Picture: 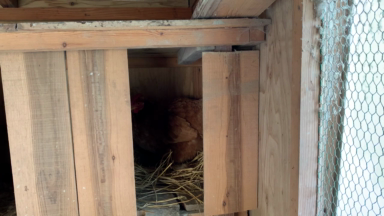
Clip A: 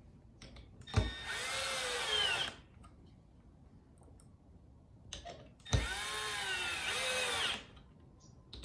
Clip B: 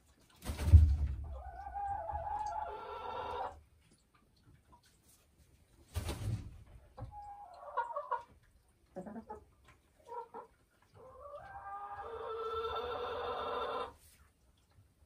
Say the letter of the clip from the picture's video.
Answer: B